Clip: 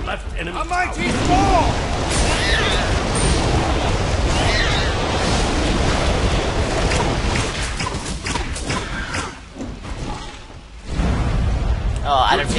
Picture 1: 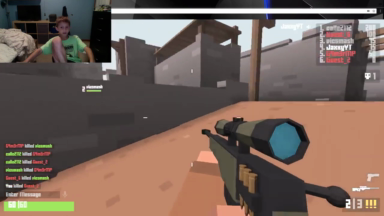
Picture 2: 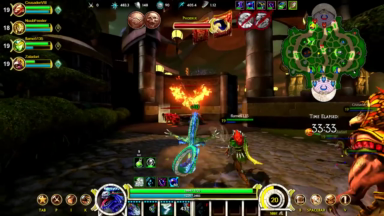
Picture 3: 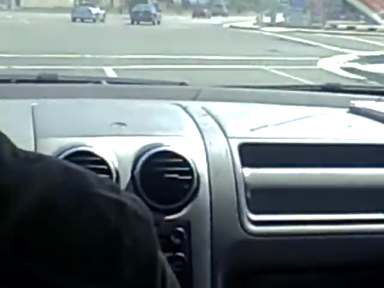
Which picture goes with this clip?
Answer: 2